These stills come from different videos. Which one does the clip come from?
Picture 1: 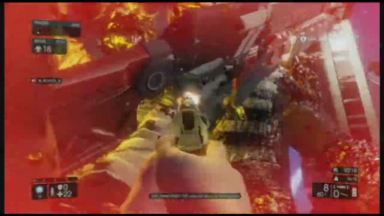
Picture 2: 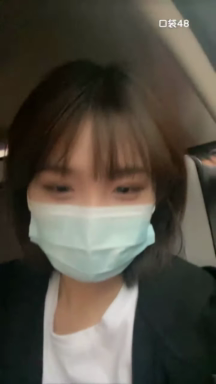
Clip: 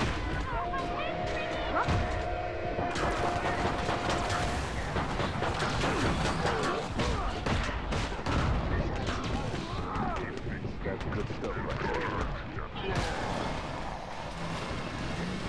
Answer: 1